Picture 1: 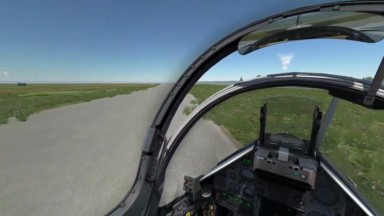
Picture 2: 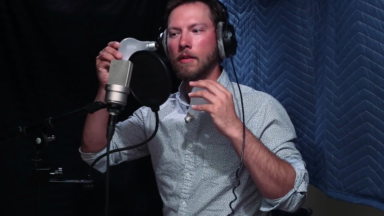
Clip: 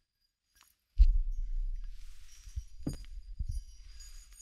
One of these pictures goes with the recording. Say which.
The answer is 2